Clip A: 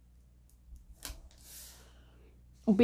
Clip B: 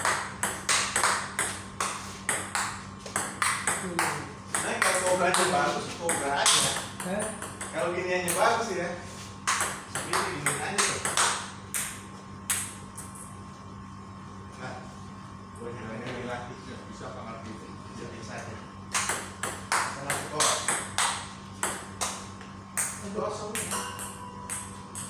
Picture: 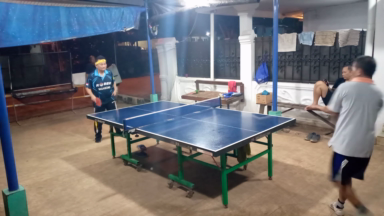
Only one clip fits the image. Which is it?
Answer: B